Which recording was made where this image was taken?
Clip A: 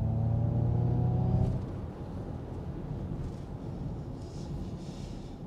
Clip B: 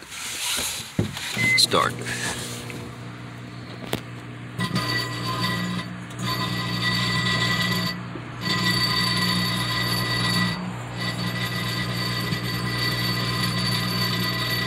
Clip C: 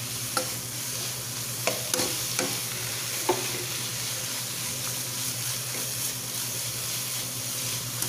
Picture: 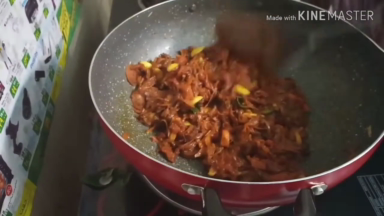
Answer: C